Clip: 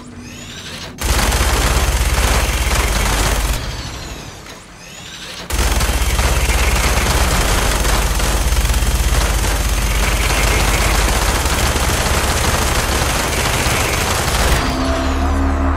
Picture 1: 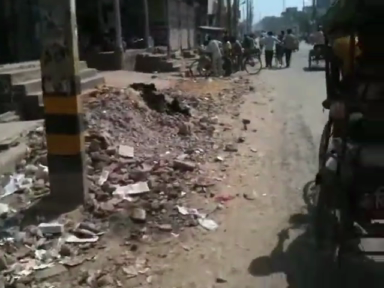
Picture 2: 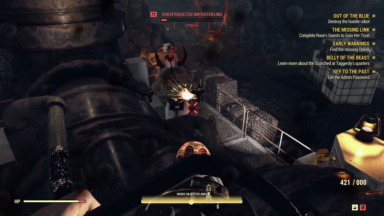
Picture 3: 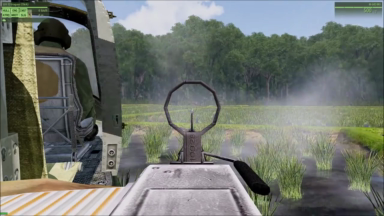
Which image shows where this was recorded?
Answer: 2